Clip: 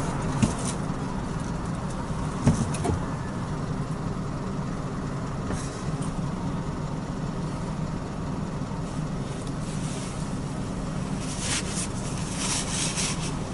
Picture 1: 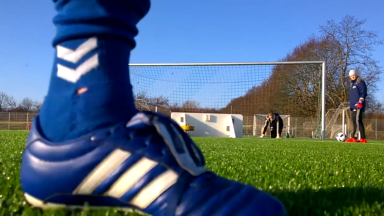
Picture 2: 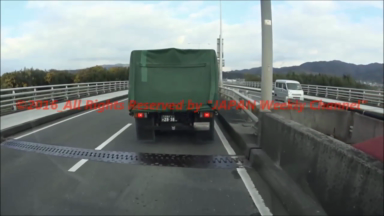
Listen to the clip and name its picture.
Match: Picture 2